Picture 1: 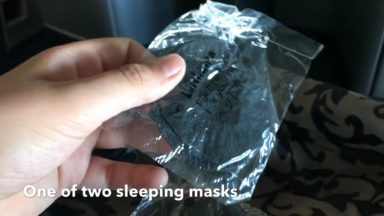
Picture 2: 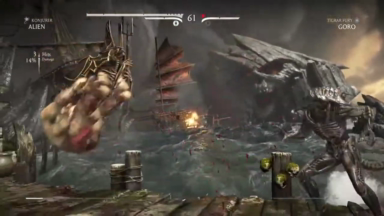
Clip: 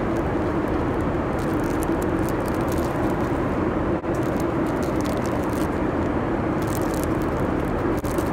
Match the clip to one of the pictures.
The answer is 1